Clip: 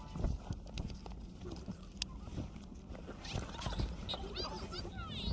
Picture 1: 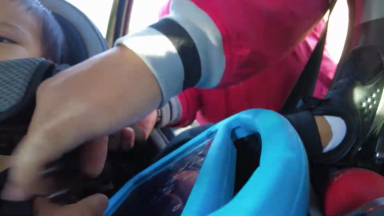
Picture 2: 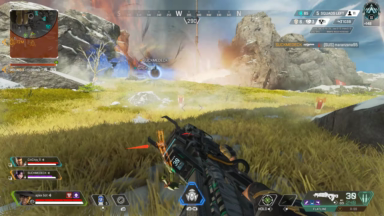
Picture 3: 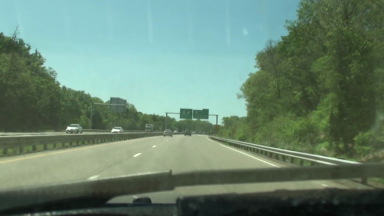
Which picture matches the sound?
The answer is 1